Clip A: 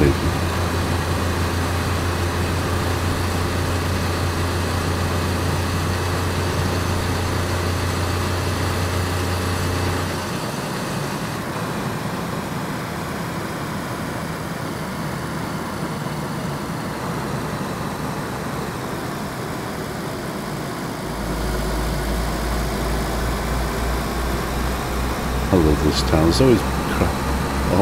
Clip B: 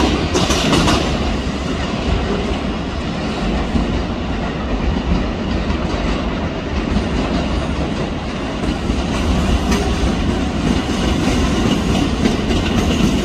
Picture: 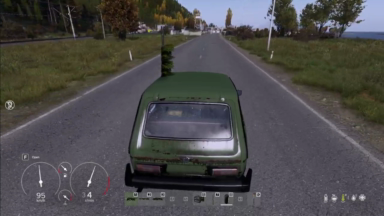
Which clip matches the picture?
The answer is A